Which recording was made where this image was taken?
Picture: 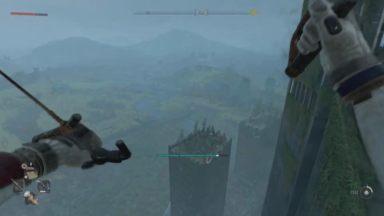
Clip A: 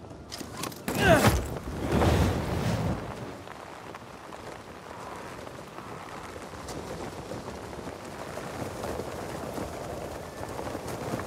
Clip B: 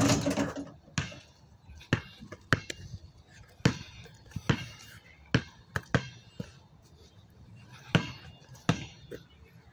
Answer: A